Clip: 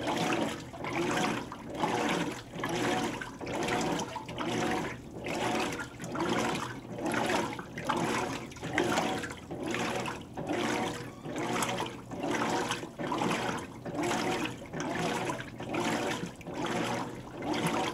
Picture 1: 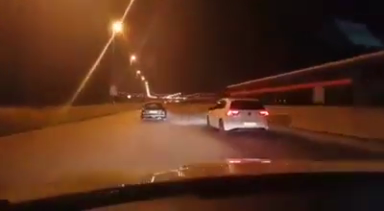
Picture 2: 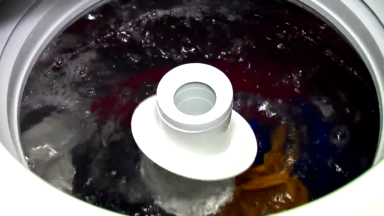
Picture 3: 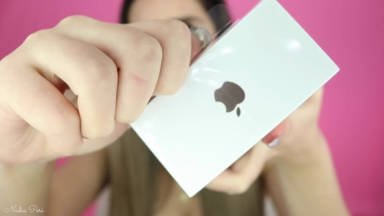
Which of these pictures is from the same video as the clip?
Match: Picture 2